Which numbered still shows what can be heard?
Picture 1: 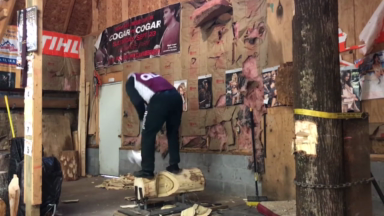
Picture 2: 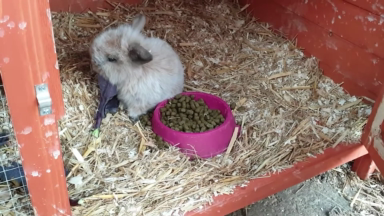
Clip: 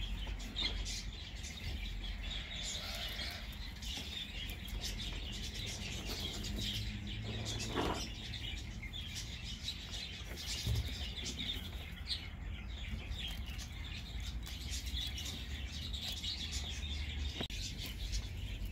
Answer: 2